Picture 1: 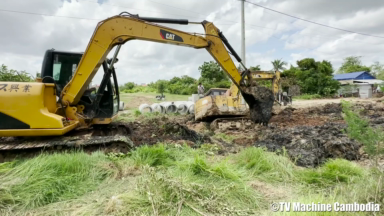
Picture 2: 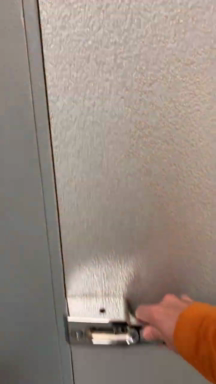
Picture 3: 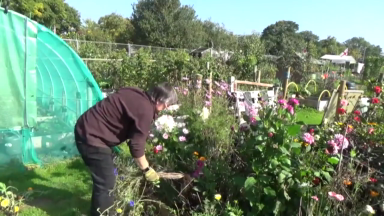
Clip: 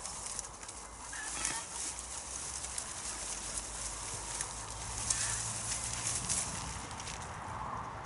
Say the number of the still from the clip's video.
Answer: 3